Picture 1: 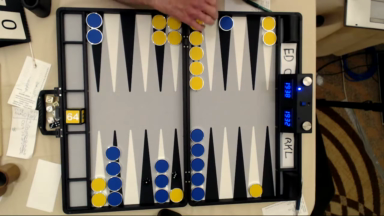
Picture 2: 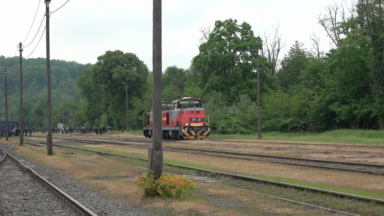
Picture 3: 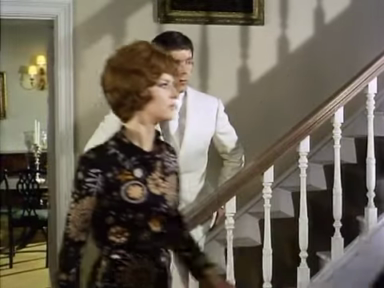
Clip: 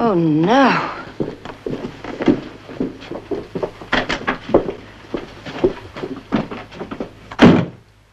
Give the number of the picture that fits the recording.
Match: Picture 3